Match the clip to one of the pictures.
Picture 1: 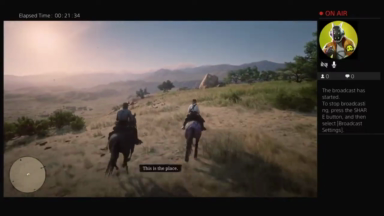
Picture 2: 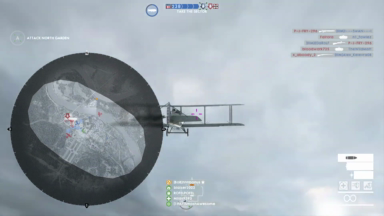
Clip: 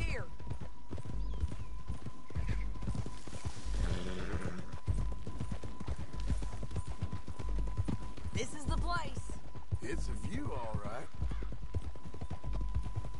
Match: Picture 1